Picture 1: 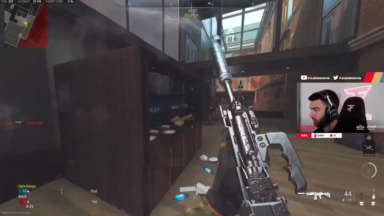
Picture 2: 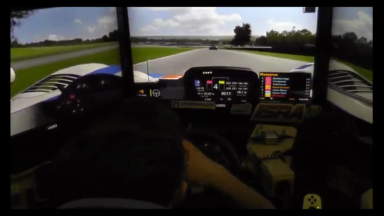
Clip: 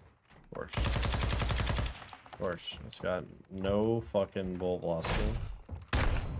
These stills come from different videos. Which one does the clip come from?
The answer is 1